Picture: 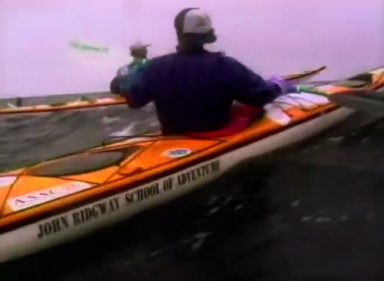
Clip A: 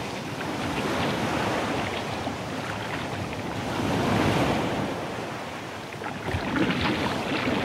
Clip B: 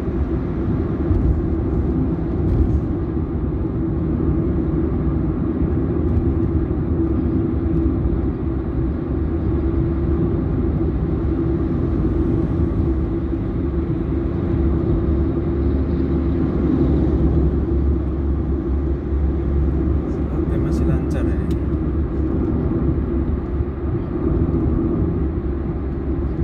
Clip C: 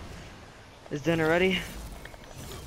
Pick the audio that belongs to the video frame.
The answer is A